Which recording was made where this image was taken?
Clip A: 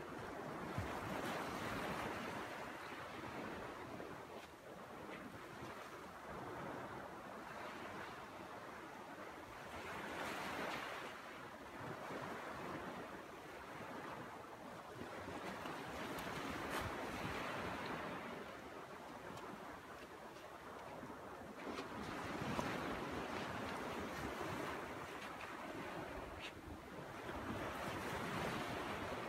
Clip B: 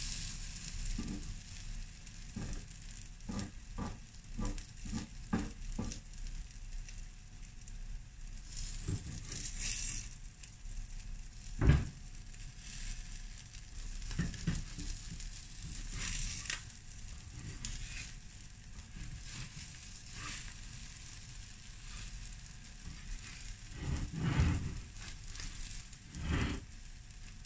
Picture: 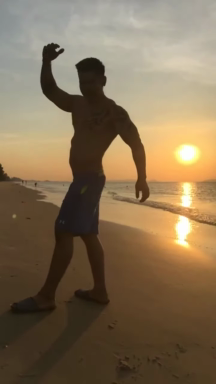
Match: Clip A